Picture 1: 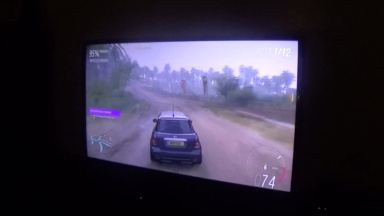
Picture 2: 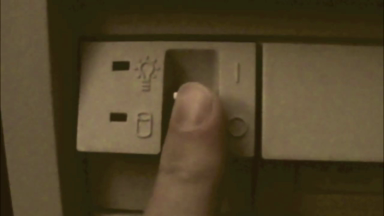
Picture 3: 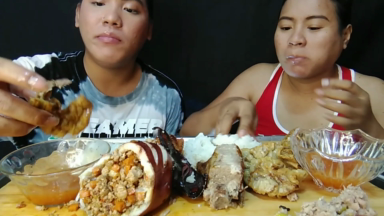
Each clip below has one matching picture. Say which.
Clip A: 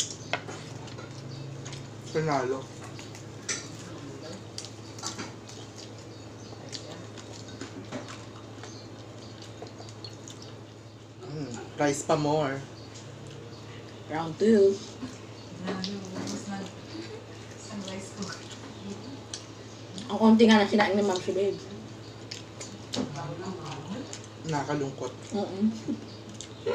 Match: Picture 3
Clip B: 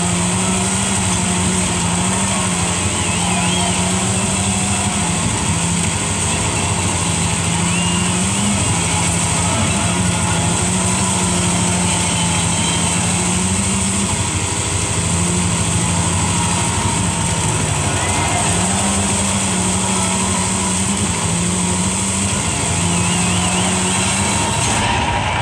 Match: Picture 1